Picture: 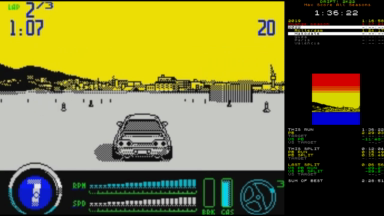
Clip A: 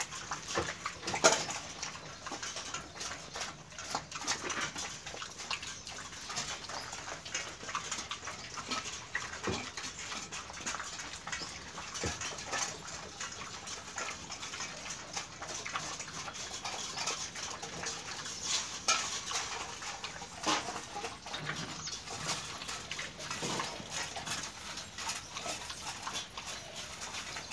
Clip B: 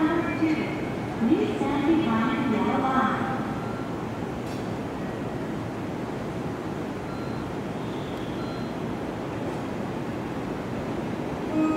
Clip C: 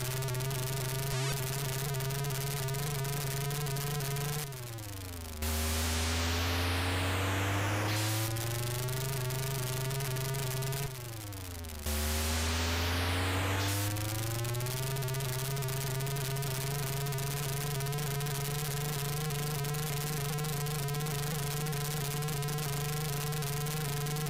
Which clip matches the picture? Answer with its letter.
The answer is C